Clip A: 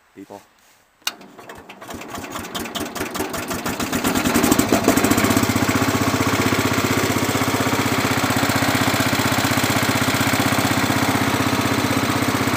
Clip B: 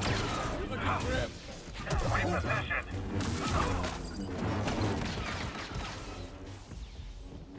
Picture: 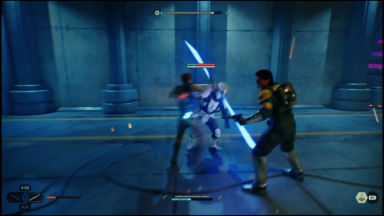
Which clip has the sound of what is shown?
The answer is B